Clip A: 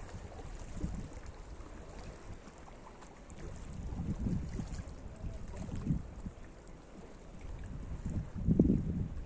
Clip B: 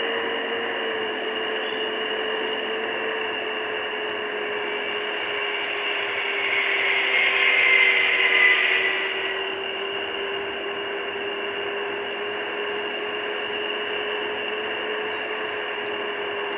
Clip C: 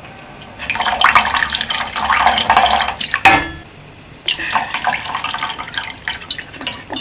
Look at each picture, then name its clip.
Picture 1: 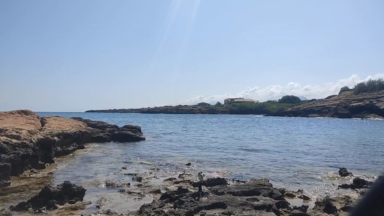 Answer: A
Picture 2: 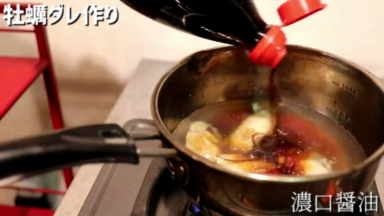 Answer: C